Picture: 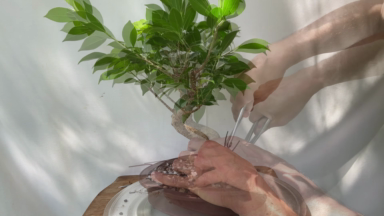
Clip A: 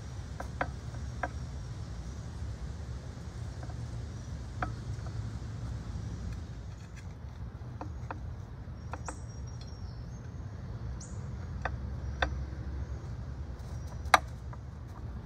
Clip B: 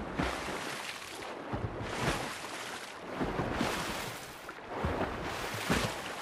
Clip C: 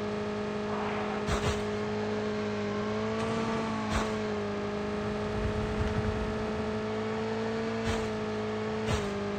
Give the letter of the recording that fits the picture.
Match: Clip A